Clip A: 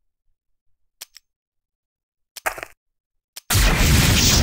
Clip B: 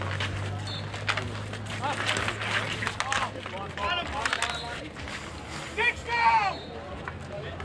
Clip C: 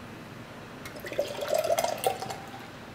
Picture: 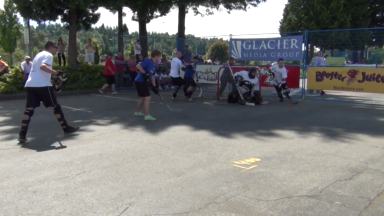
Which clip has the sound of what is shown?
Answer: B